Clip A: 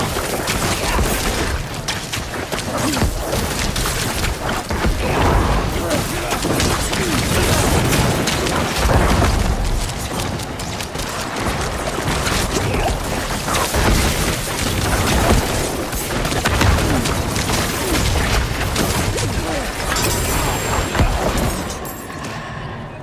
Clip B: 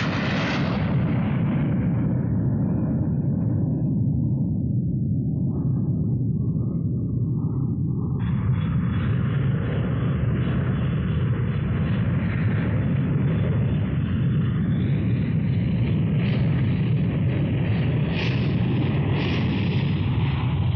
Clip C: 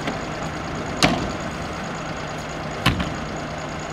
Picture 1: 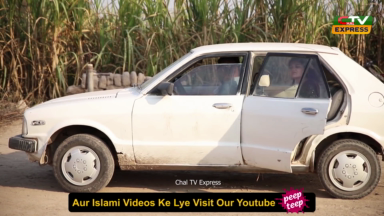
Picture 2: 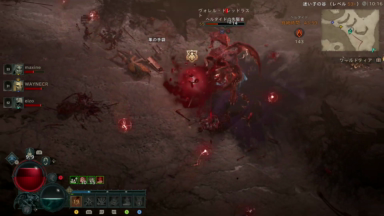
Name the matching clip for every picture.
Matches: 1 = C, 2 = A